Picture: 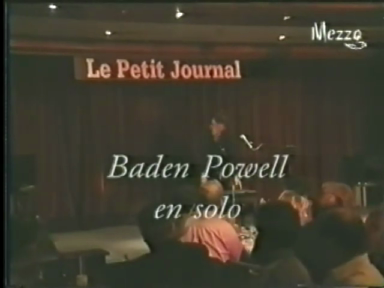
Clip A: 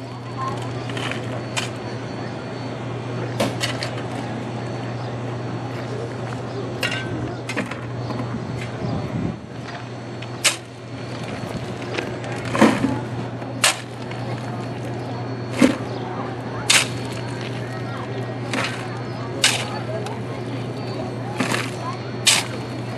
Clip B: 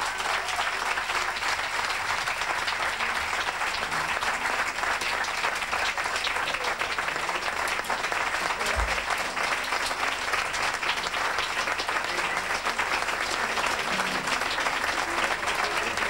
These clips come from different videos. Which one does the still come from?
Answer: B